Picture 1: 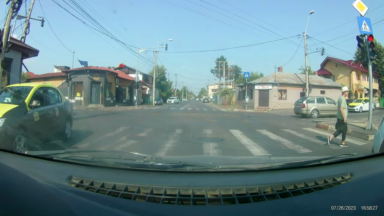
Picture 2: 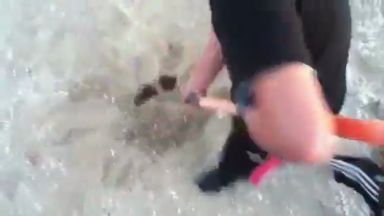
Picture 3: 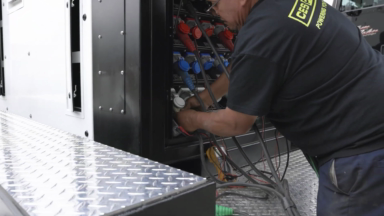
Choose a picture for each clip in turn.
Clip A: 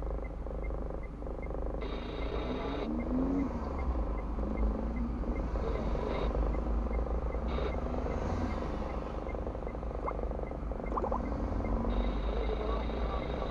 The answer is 1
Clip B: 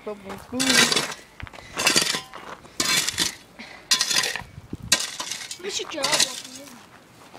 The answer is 2